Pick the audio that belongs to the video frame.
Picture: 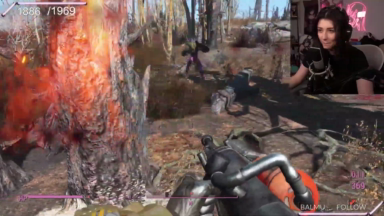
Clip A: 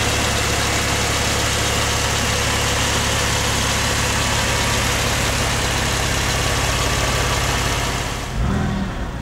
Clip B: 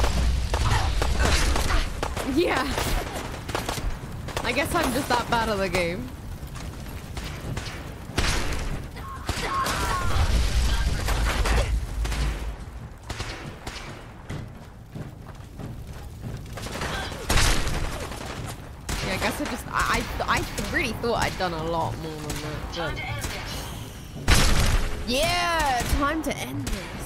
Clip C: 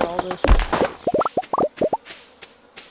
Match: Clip B